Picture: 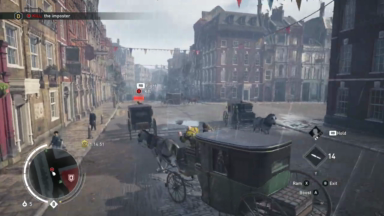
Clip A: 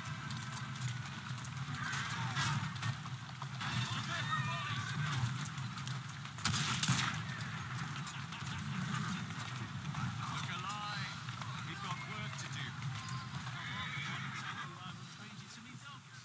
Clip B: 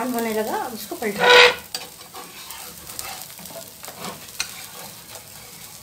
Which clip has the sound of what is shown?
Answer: A